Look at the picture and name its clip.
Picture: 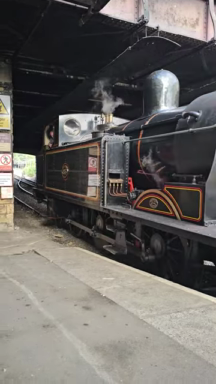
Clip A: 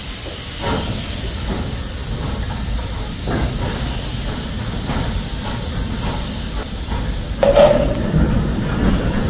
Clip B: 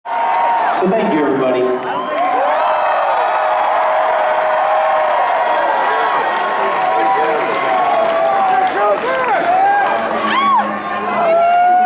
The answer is A